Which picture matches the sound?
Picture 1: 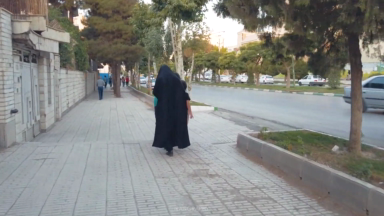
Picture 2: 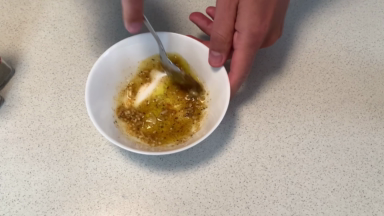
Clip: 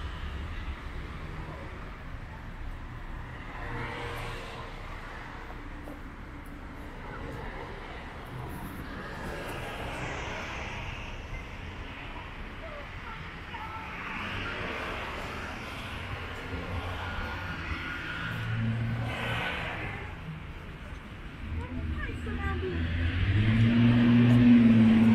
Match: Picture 1